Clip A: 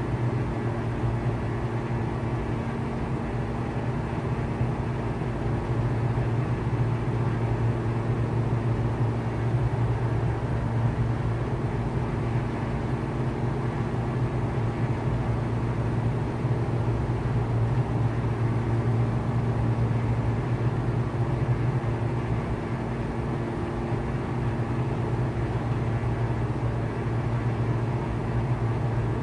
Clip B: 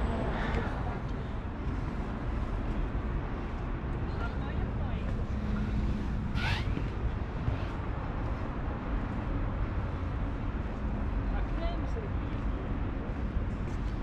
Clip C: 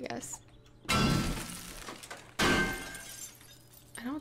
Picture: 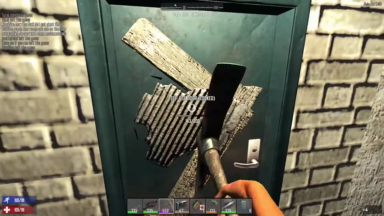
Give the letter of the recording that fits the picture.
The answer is C